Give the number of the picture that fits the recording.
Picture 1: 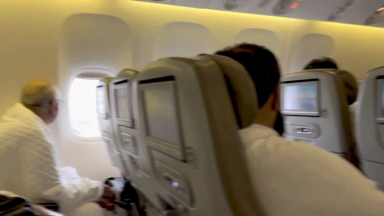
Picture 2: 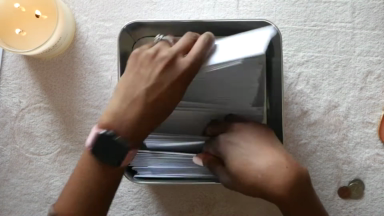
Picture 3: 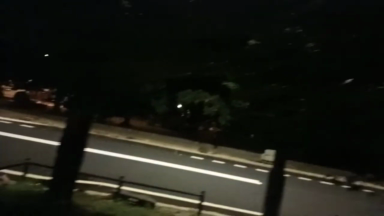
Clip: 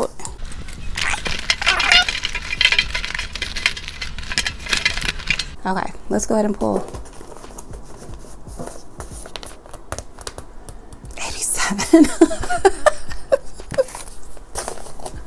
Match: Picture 2